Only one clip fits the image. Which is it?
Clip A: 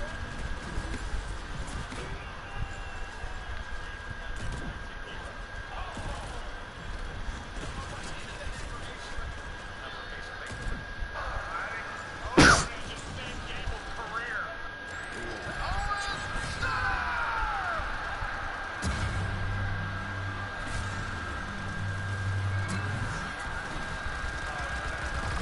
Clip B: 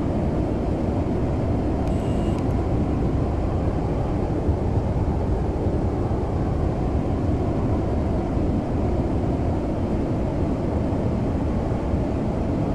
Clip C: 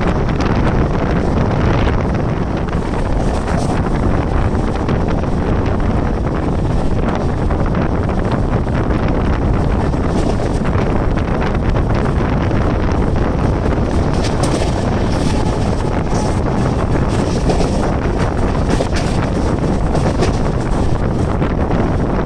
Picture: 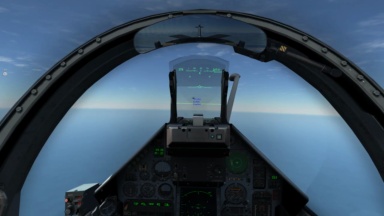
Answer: B